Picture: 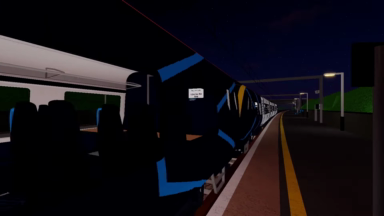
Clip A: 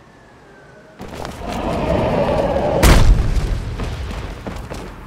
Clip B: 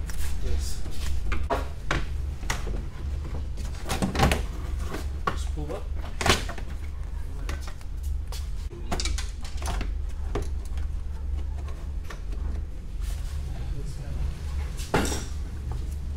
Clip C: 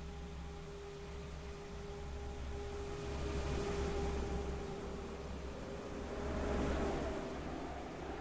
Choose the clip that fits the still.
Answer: C